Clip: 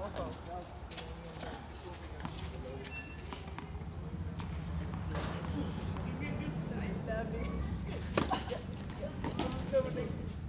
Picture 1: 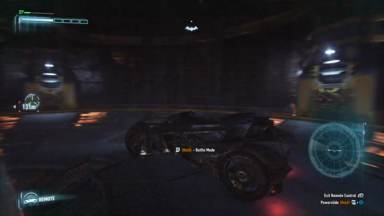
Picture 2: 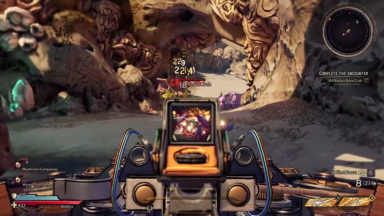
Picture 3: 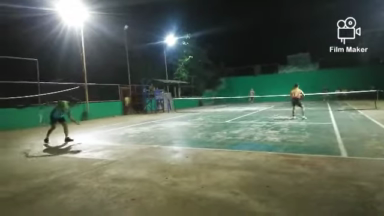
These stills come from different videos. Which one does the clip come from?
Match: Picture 3